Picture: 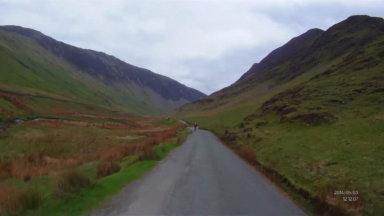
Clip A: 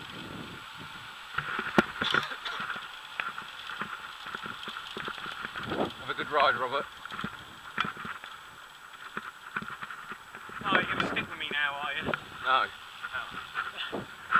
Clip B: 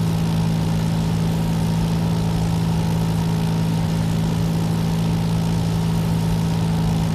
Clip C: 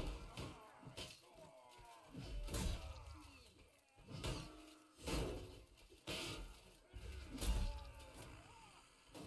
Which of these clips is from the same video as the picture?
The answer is A